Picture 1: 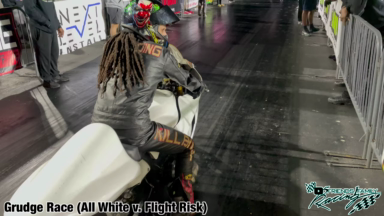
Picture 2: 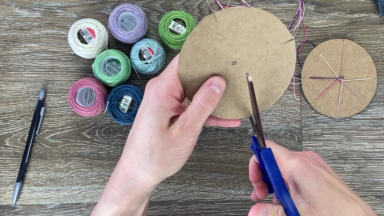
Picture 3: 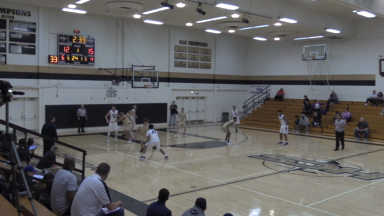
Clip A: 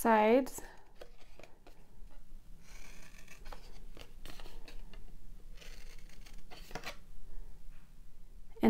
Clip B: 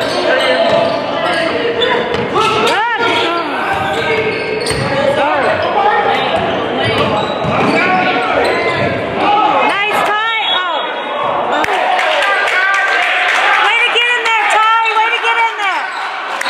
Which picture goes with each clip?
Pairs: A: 2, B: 3